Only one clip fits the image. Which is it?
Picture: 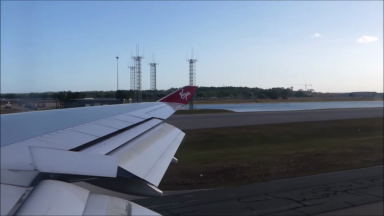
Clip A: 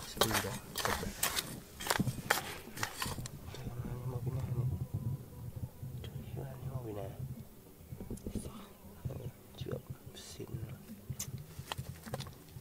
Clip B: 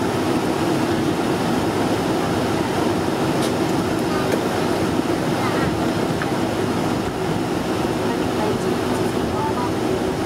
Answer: B